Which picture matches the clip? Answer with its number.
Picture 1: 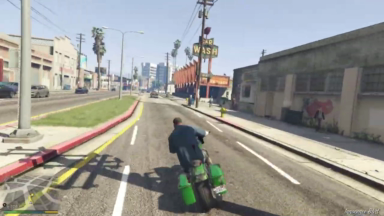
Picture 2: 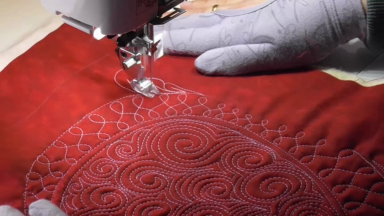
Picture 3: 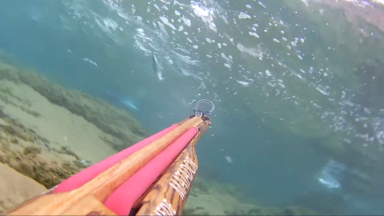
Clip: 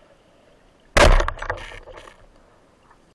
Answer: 3